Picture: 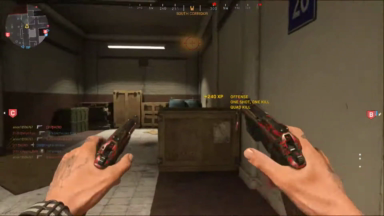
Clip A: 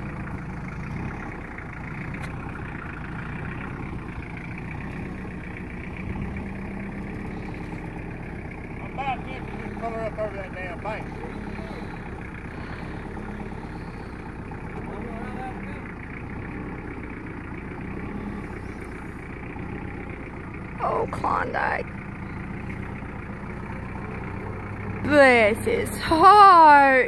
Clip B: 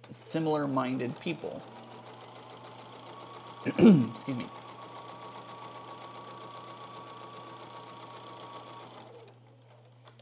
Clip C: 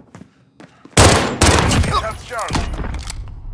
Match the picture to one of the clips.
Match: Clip C